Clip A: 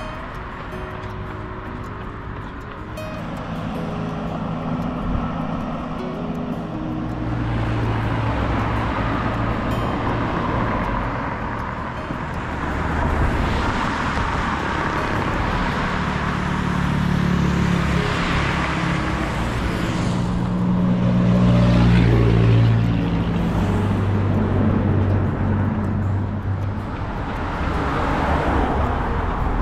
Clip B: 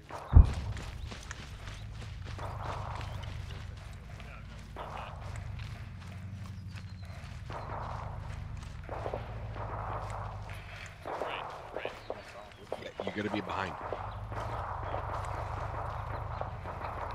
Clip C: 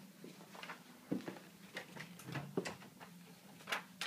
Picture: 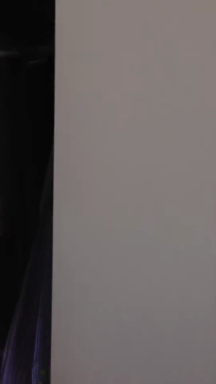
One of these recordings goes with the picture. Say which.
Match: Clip C